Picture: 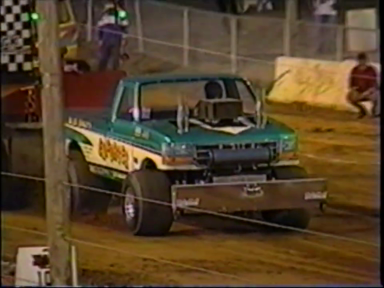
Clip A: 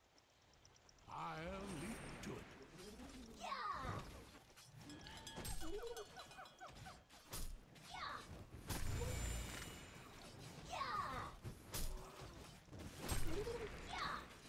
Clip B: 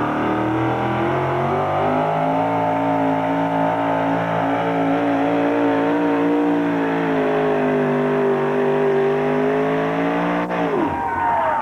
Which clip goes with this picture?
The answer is B